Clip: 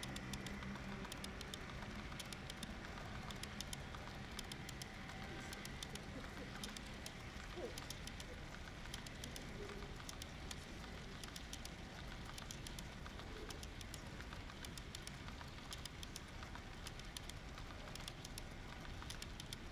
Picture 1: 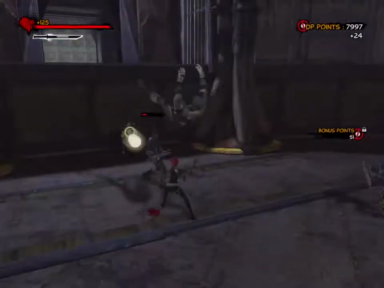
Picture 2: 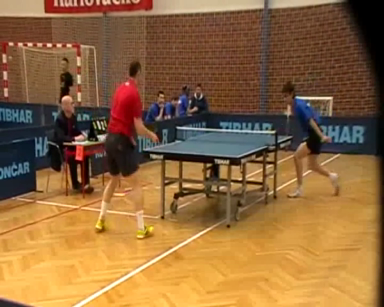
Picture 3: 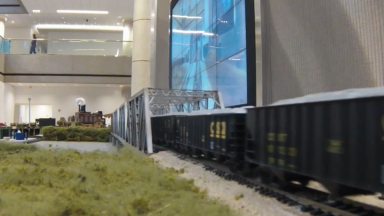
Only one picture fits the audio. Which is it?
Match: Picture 3